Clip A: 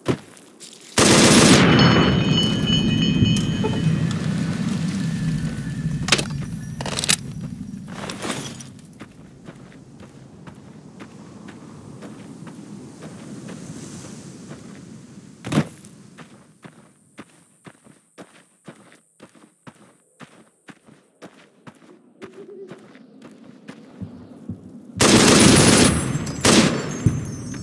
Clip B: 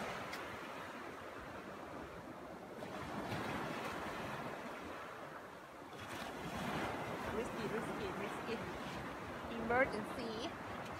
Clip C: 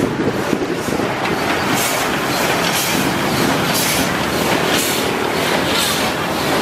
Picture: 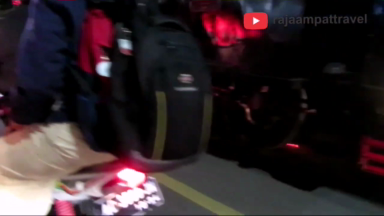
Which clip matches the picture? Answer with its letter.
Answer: C